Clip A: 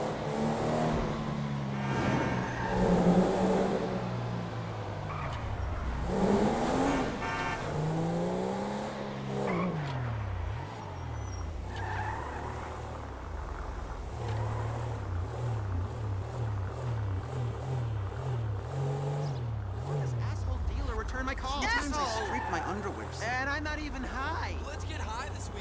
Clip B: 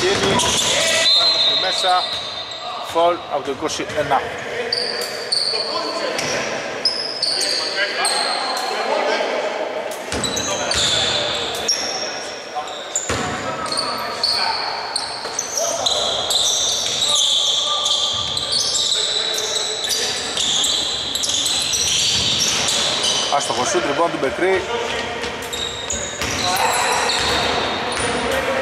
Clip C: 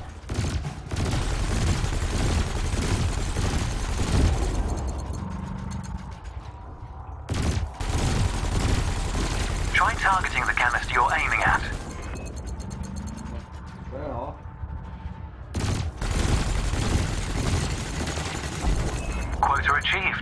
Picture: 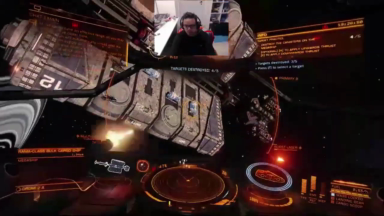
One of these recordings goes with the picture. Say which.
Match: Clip C